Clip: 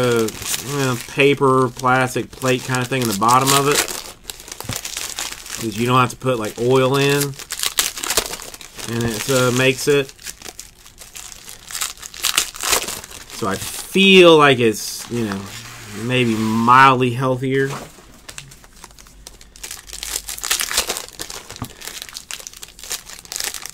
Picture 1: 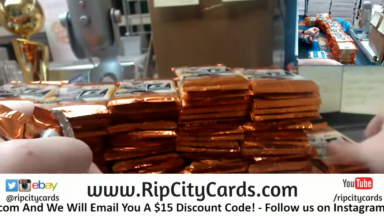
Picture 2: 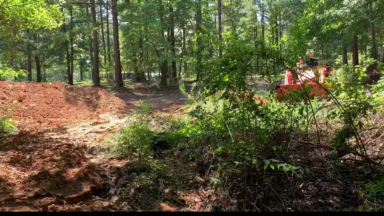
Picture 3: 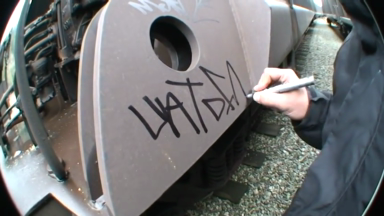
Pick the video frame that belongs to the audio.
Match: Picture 1